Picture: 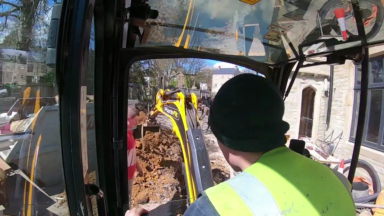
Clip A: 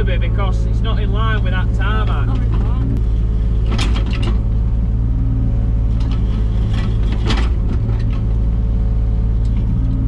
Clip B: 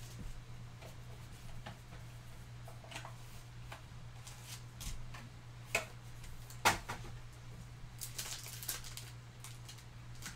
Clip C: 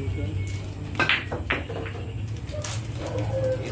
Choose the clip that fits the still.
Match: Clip A